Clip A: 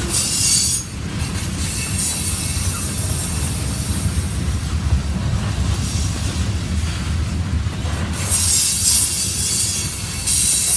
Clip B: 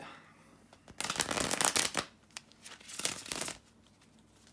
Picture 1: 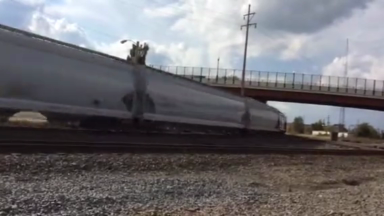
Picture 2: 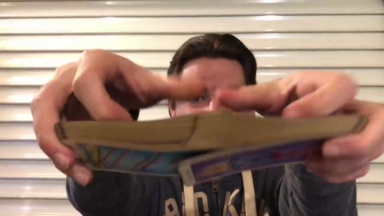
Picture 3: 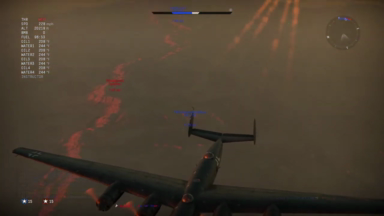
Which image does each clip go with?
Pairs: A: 1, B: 2